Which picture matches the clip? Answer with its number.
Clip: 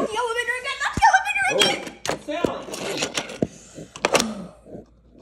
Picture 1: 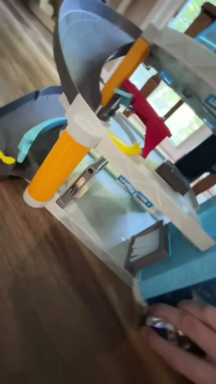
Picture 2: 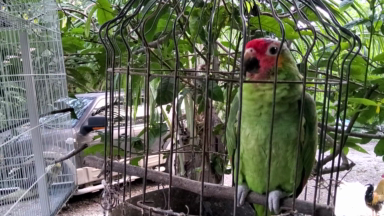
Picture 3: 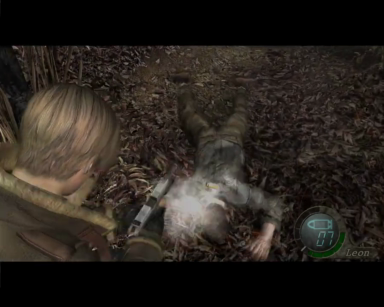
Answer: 1